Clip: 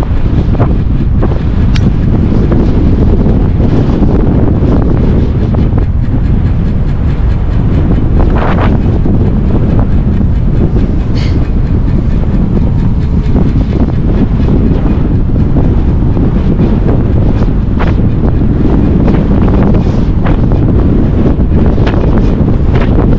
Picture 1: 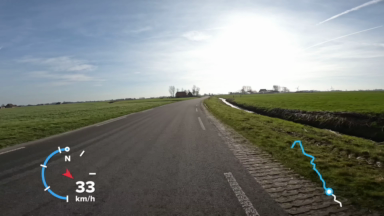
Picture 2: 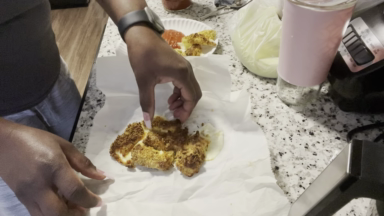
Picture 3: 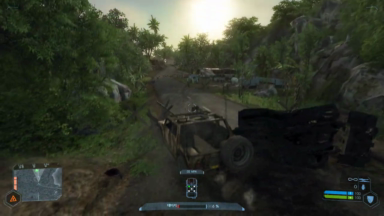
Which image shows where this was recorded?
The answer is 1